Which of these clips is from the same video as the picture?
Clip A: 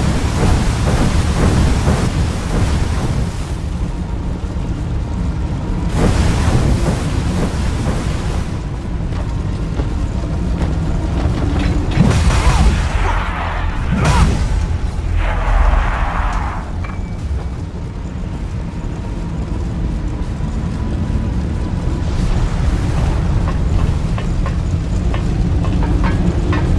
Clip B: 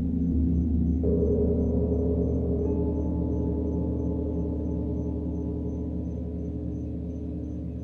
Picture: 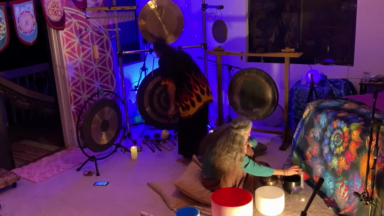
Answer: B